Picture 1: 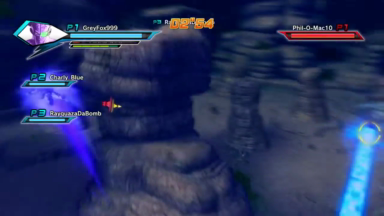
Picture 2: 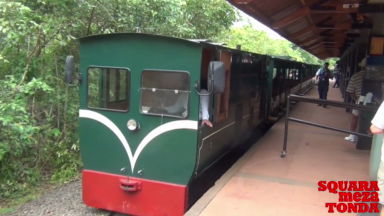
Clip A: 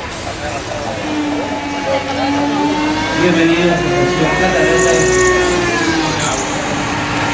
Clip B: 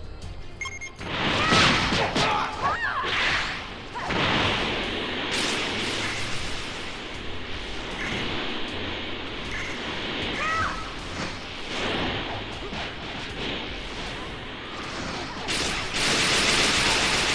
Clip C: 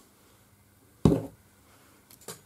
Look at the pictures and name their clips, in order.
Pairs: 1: B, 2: A